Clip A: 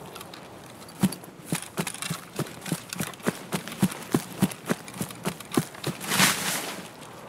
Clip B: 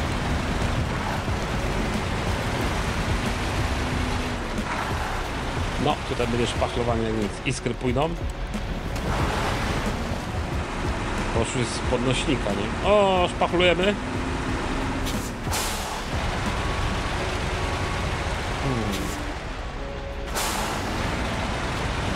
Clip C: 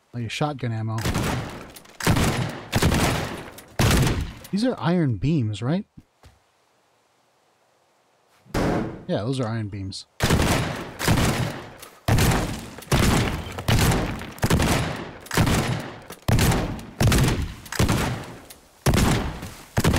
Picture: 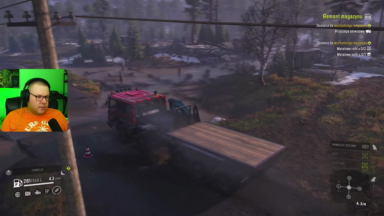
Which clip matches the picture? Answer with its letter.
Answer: B